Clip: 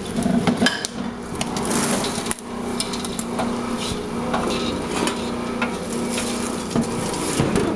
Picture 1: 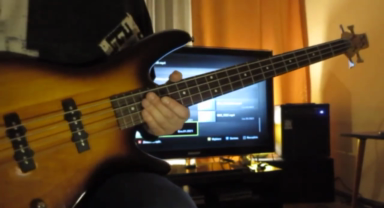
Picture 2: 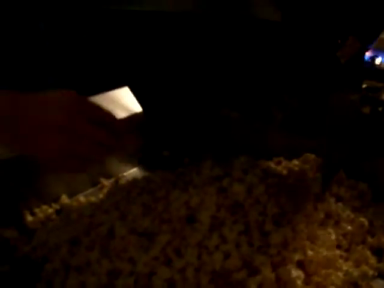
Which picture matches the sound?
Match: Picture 2